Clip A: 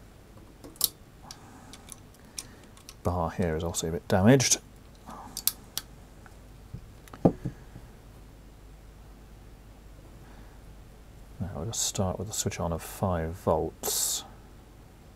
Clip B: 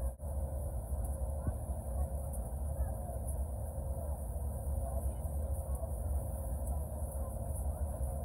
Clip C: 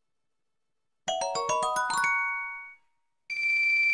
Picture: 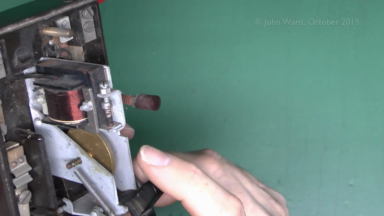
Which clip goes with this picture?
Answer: A